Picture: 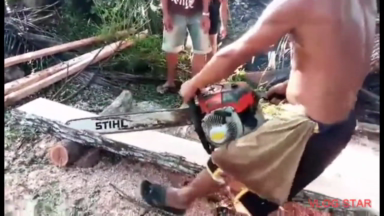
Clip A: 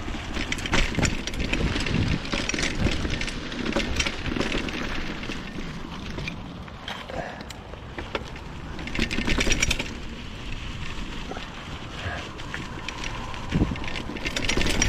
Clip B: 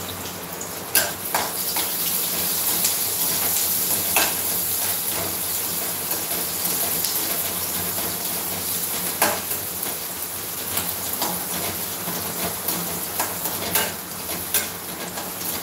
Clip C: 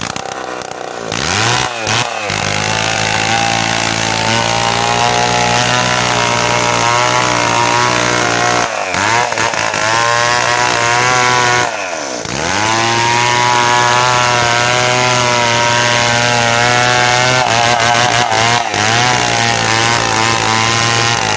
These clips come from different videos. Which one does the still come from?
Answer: C